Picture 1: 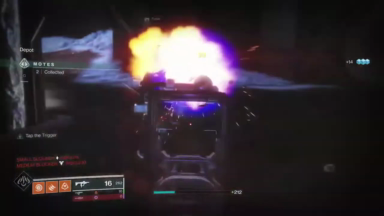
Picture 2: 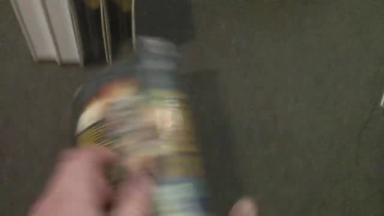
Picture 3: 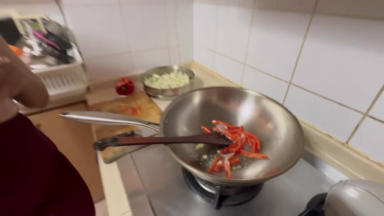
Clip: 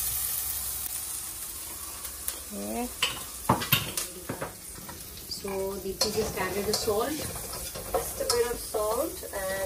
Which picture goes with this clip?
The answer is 3